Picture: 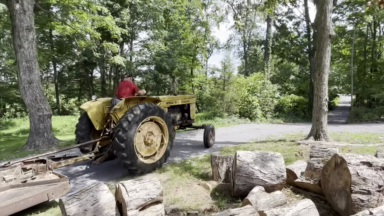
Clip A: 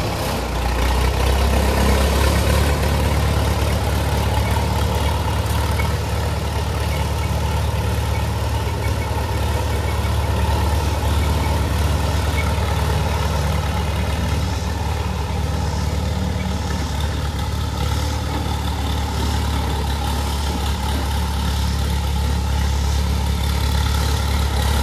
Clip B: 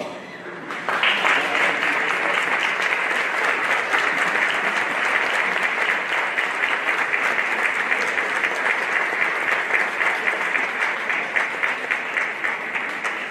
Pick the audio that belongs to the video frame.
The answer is A